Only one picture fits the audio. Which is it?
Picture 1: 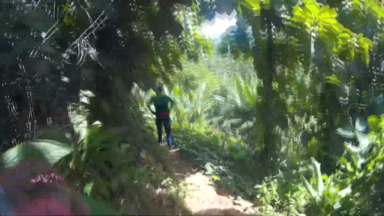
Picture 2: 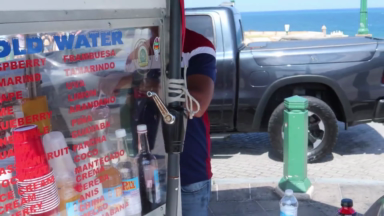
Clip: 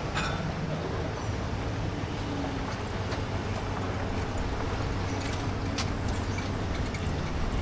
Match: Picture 2